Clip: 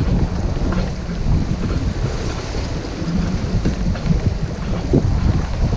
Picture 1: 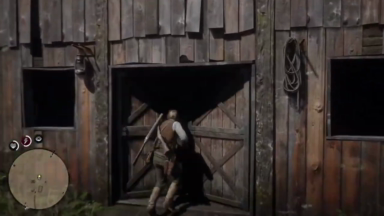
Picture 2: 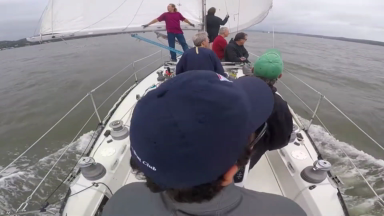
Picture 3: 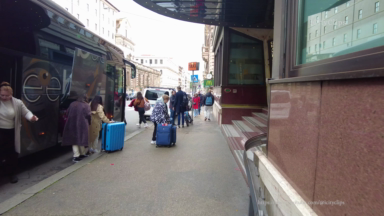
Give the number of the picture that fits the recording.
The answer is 2